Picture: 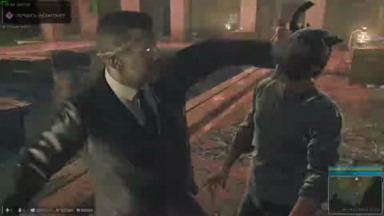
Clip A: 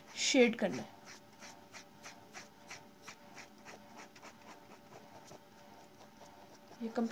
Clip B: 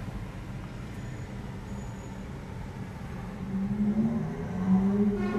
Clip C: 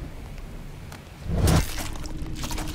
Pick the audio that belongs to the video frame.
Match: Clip C